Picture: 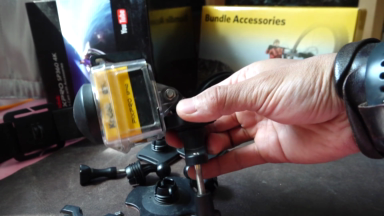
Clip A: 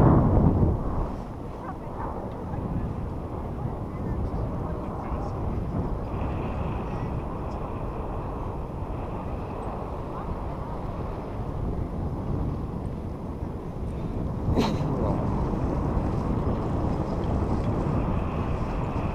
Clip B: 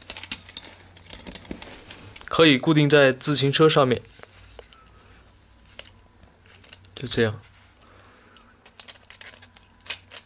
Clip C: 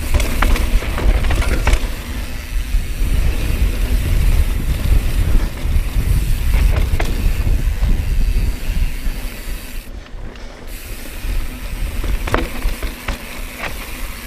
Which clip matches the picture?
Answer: B